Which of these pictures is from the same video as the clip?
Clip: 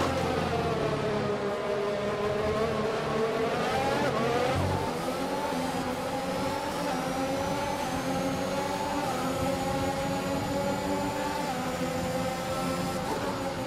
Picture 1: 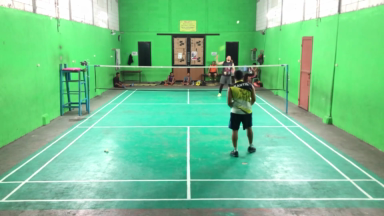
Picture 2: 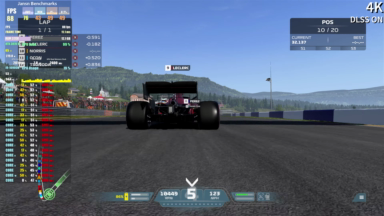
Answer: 2